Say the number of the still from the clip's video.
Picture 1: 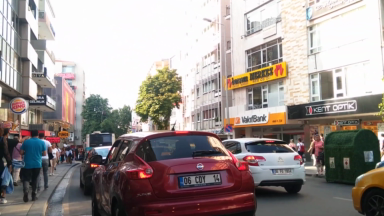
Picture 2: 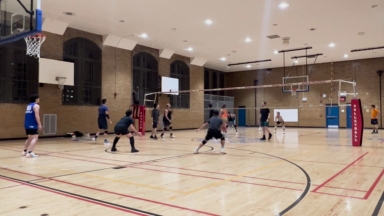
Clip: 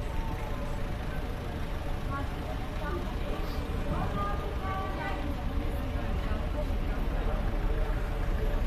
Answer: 1